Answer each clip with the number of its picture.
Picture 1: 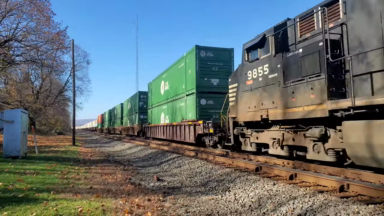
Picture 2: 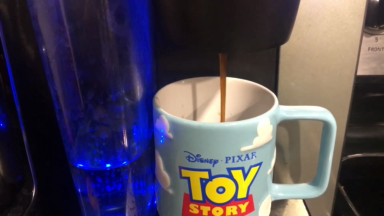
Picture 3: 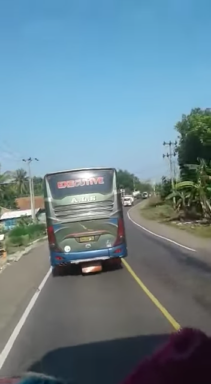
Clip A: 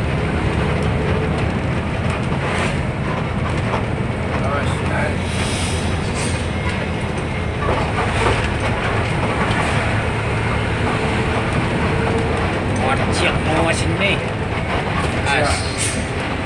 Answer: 3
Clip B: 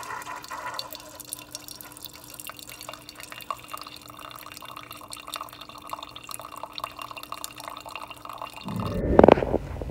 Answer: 2